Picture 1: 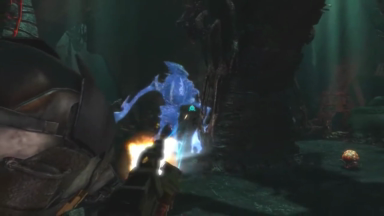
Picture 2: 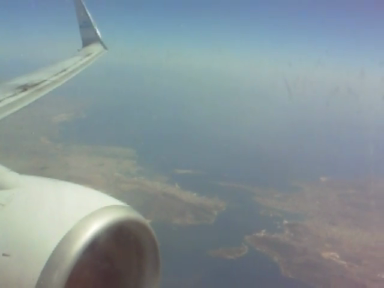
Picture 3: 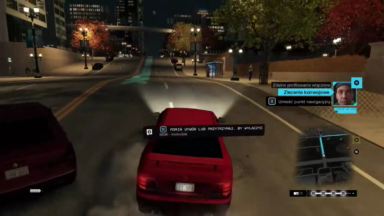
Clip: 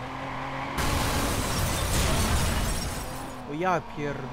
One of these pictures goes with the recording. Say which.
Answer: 3